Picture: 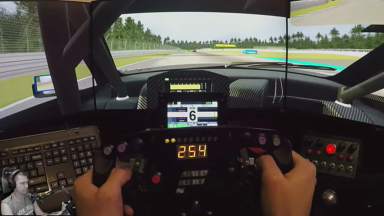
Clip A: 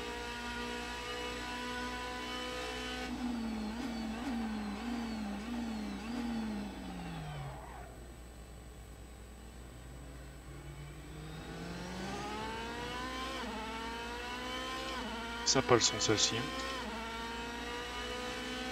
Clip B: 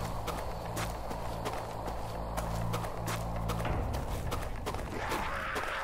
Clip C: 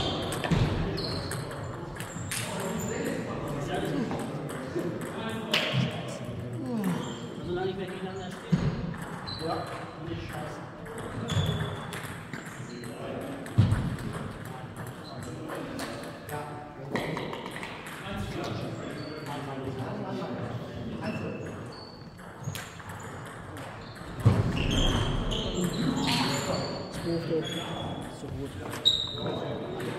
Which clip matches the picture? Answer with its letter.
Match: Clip A